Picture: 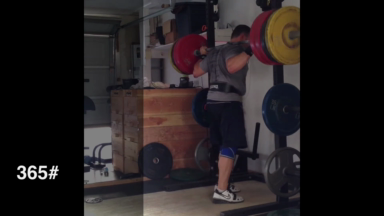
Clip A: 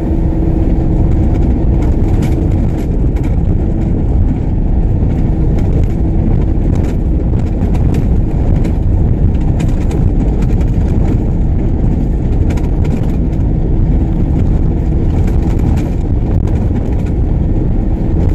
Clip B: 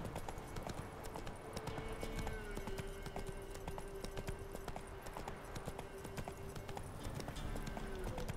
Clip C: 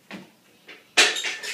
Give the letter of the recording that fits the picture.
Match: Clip C